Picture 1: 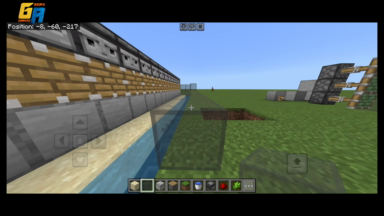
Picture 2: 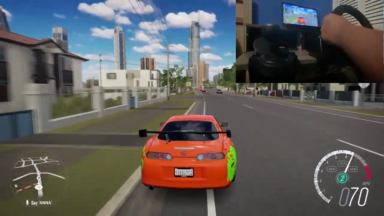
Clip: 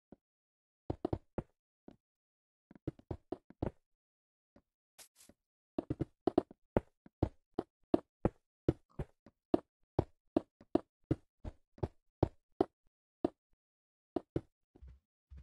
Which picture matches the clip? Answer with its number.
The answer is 1